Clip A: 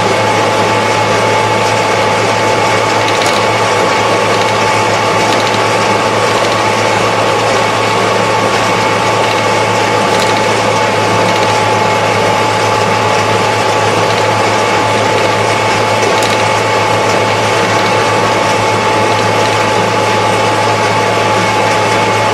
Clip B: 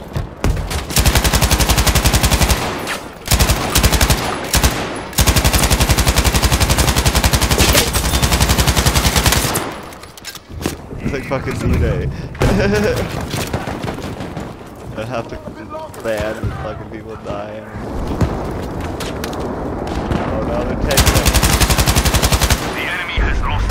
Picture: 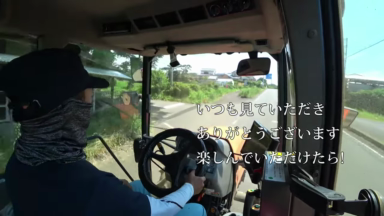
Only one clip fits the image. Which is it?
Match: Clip A